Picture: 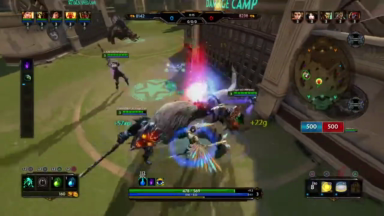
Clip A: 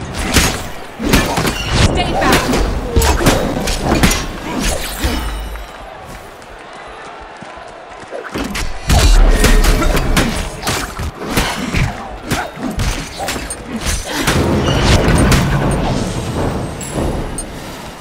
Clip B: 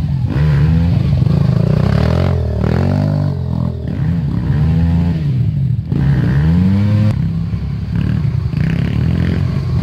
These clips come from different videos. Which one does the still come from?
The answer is A